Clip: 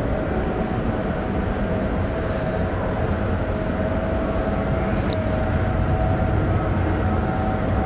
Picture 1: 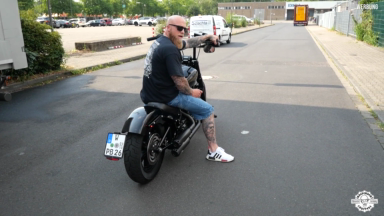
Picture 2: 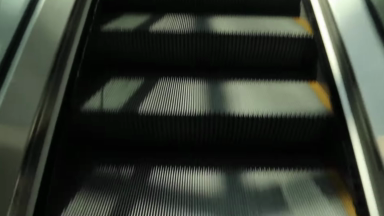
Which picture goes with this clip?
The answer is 2